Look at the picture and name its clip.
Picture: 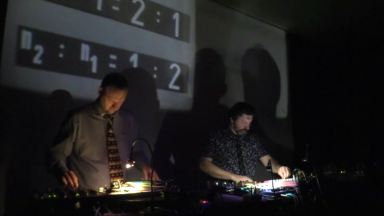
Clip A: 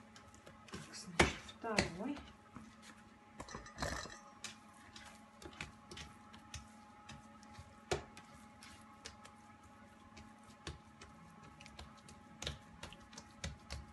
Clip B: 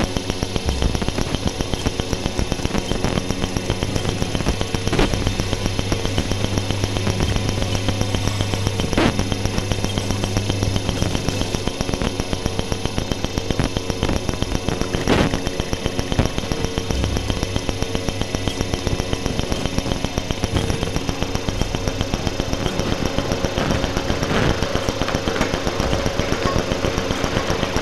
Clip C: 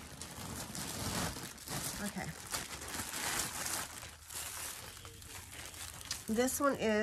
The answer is B